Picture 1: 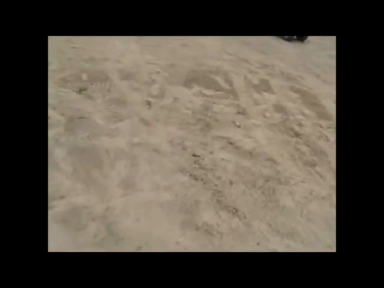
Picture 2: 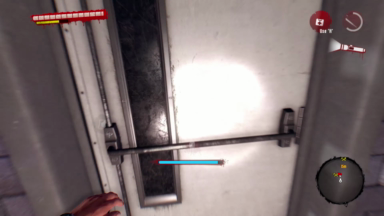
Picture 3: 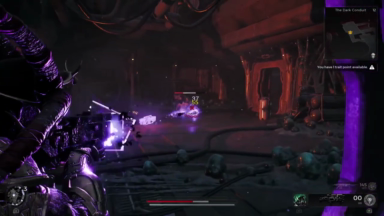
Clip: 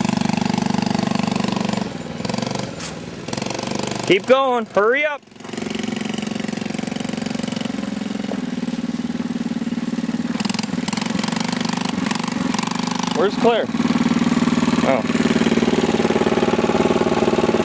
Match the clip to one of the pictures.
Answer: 1